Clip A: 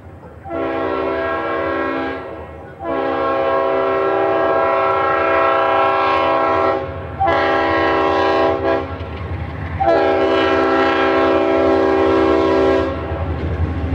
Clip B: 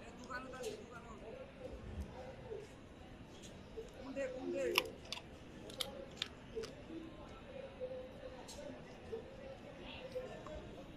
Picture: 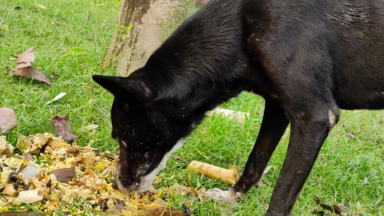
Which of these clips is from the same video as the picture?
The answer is B